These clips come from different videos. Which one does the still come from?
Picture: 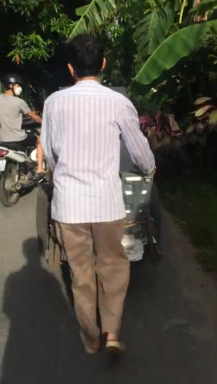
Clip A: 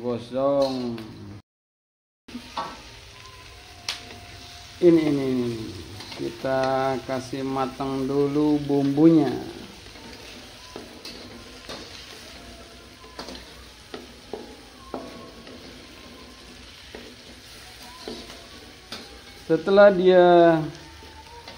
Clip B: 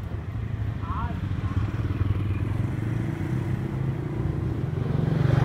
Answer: B